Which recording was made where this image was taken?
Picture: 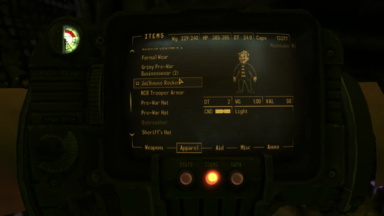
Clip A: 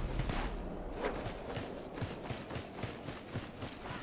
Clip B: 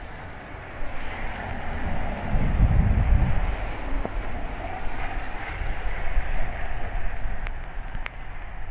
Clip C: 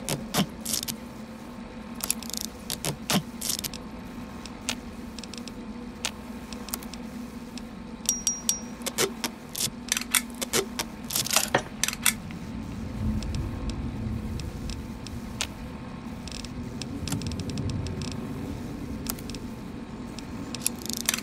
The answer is C